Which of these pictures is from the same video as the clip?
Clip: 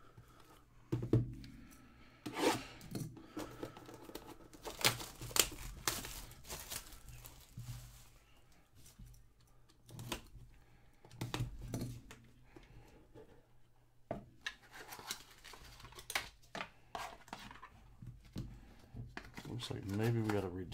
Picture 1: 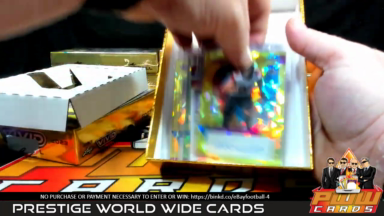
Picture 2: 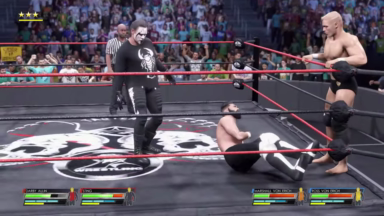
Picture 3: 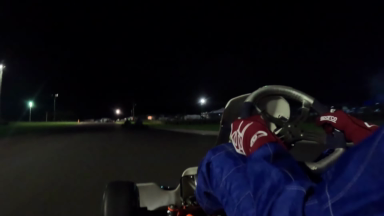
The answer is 1